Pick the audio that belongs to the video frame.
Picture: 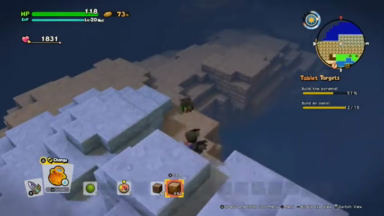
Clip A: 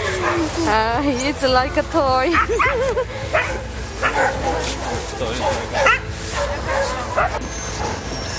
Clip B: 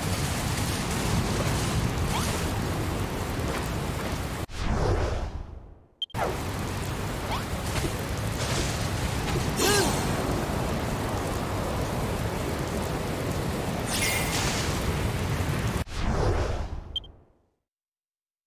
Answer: B